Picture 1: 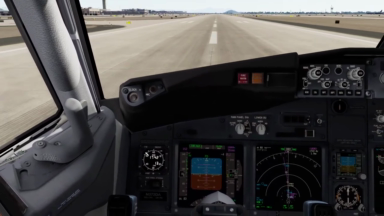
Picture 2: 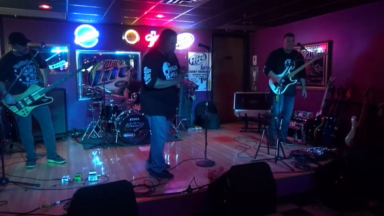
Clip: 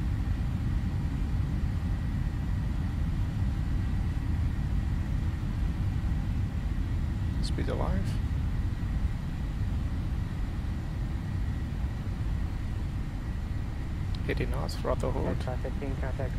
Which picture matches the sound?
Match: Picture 1